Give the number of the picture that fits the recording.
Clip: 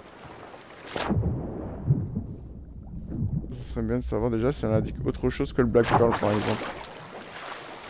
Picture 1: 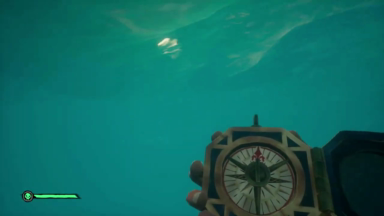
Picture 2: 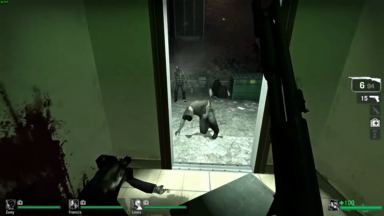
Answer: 1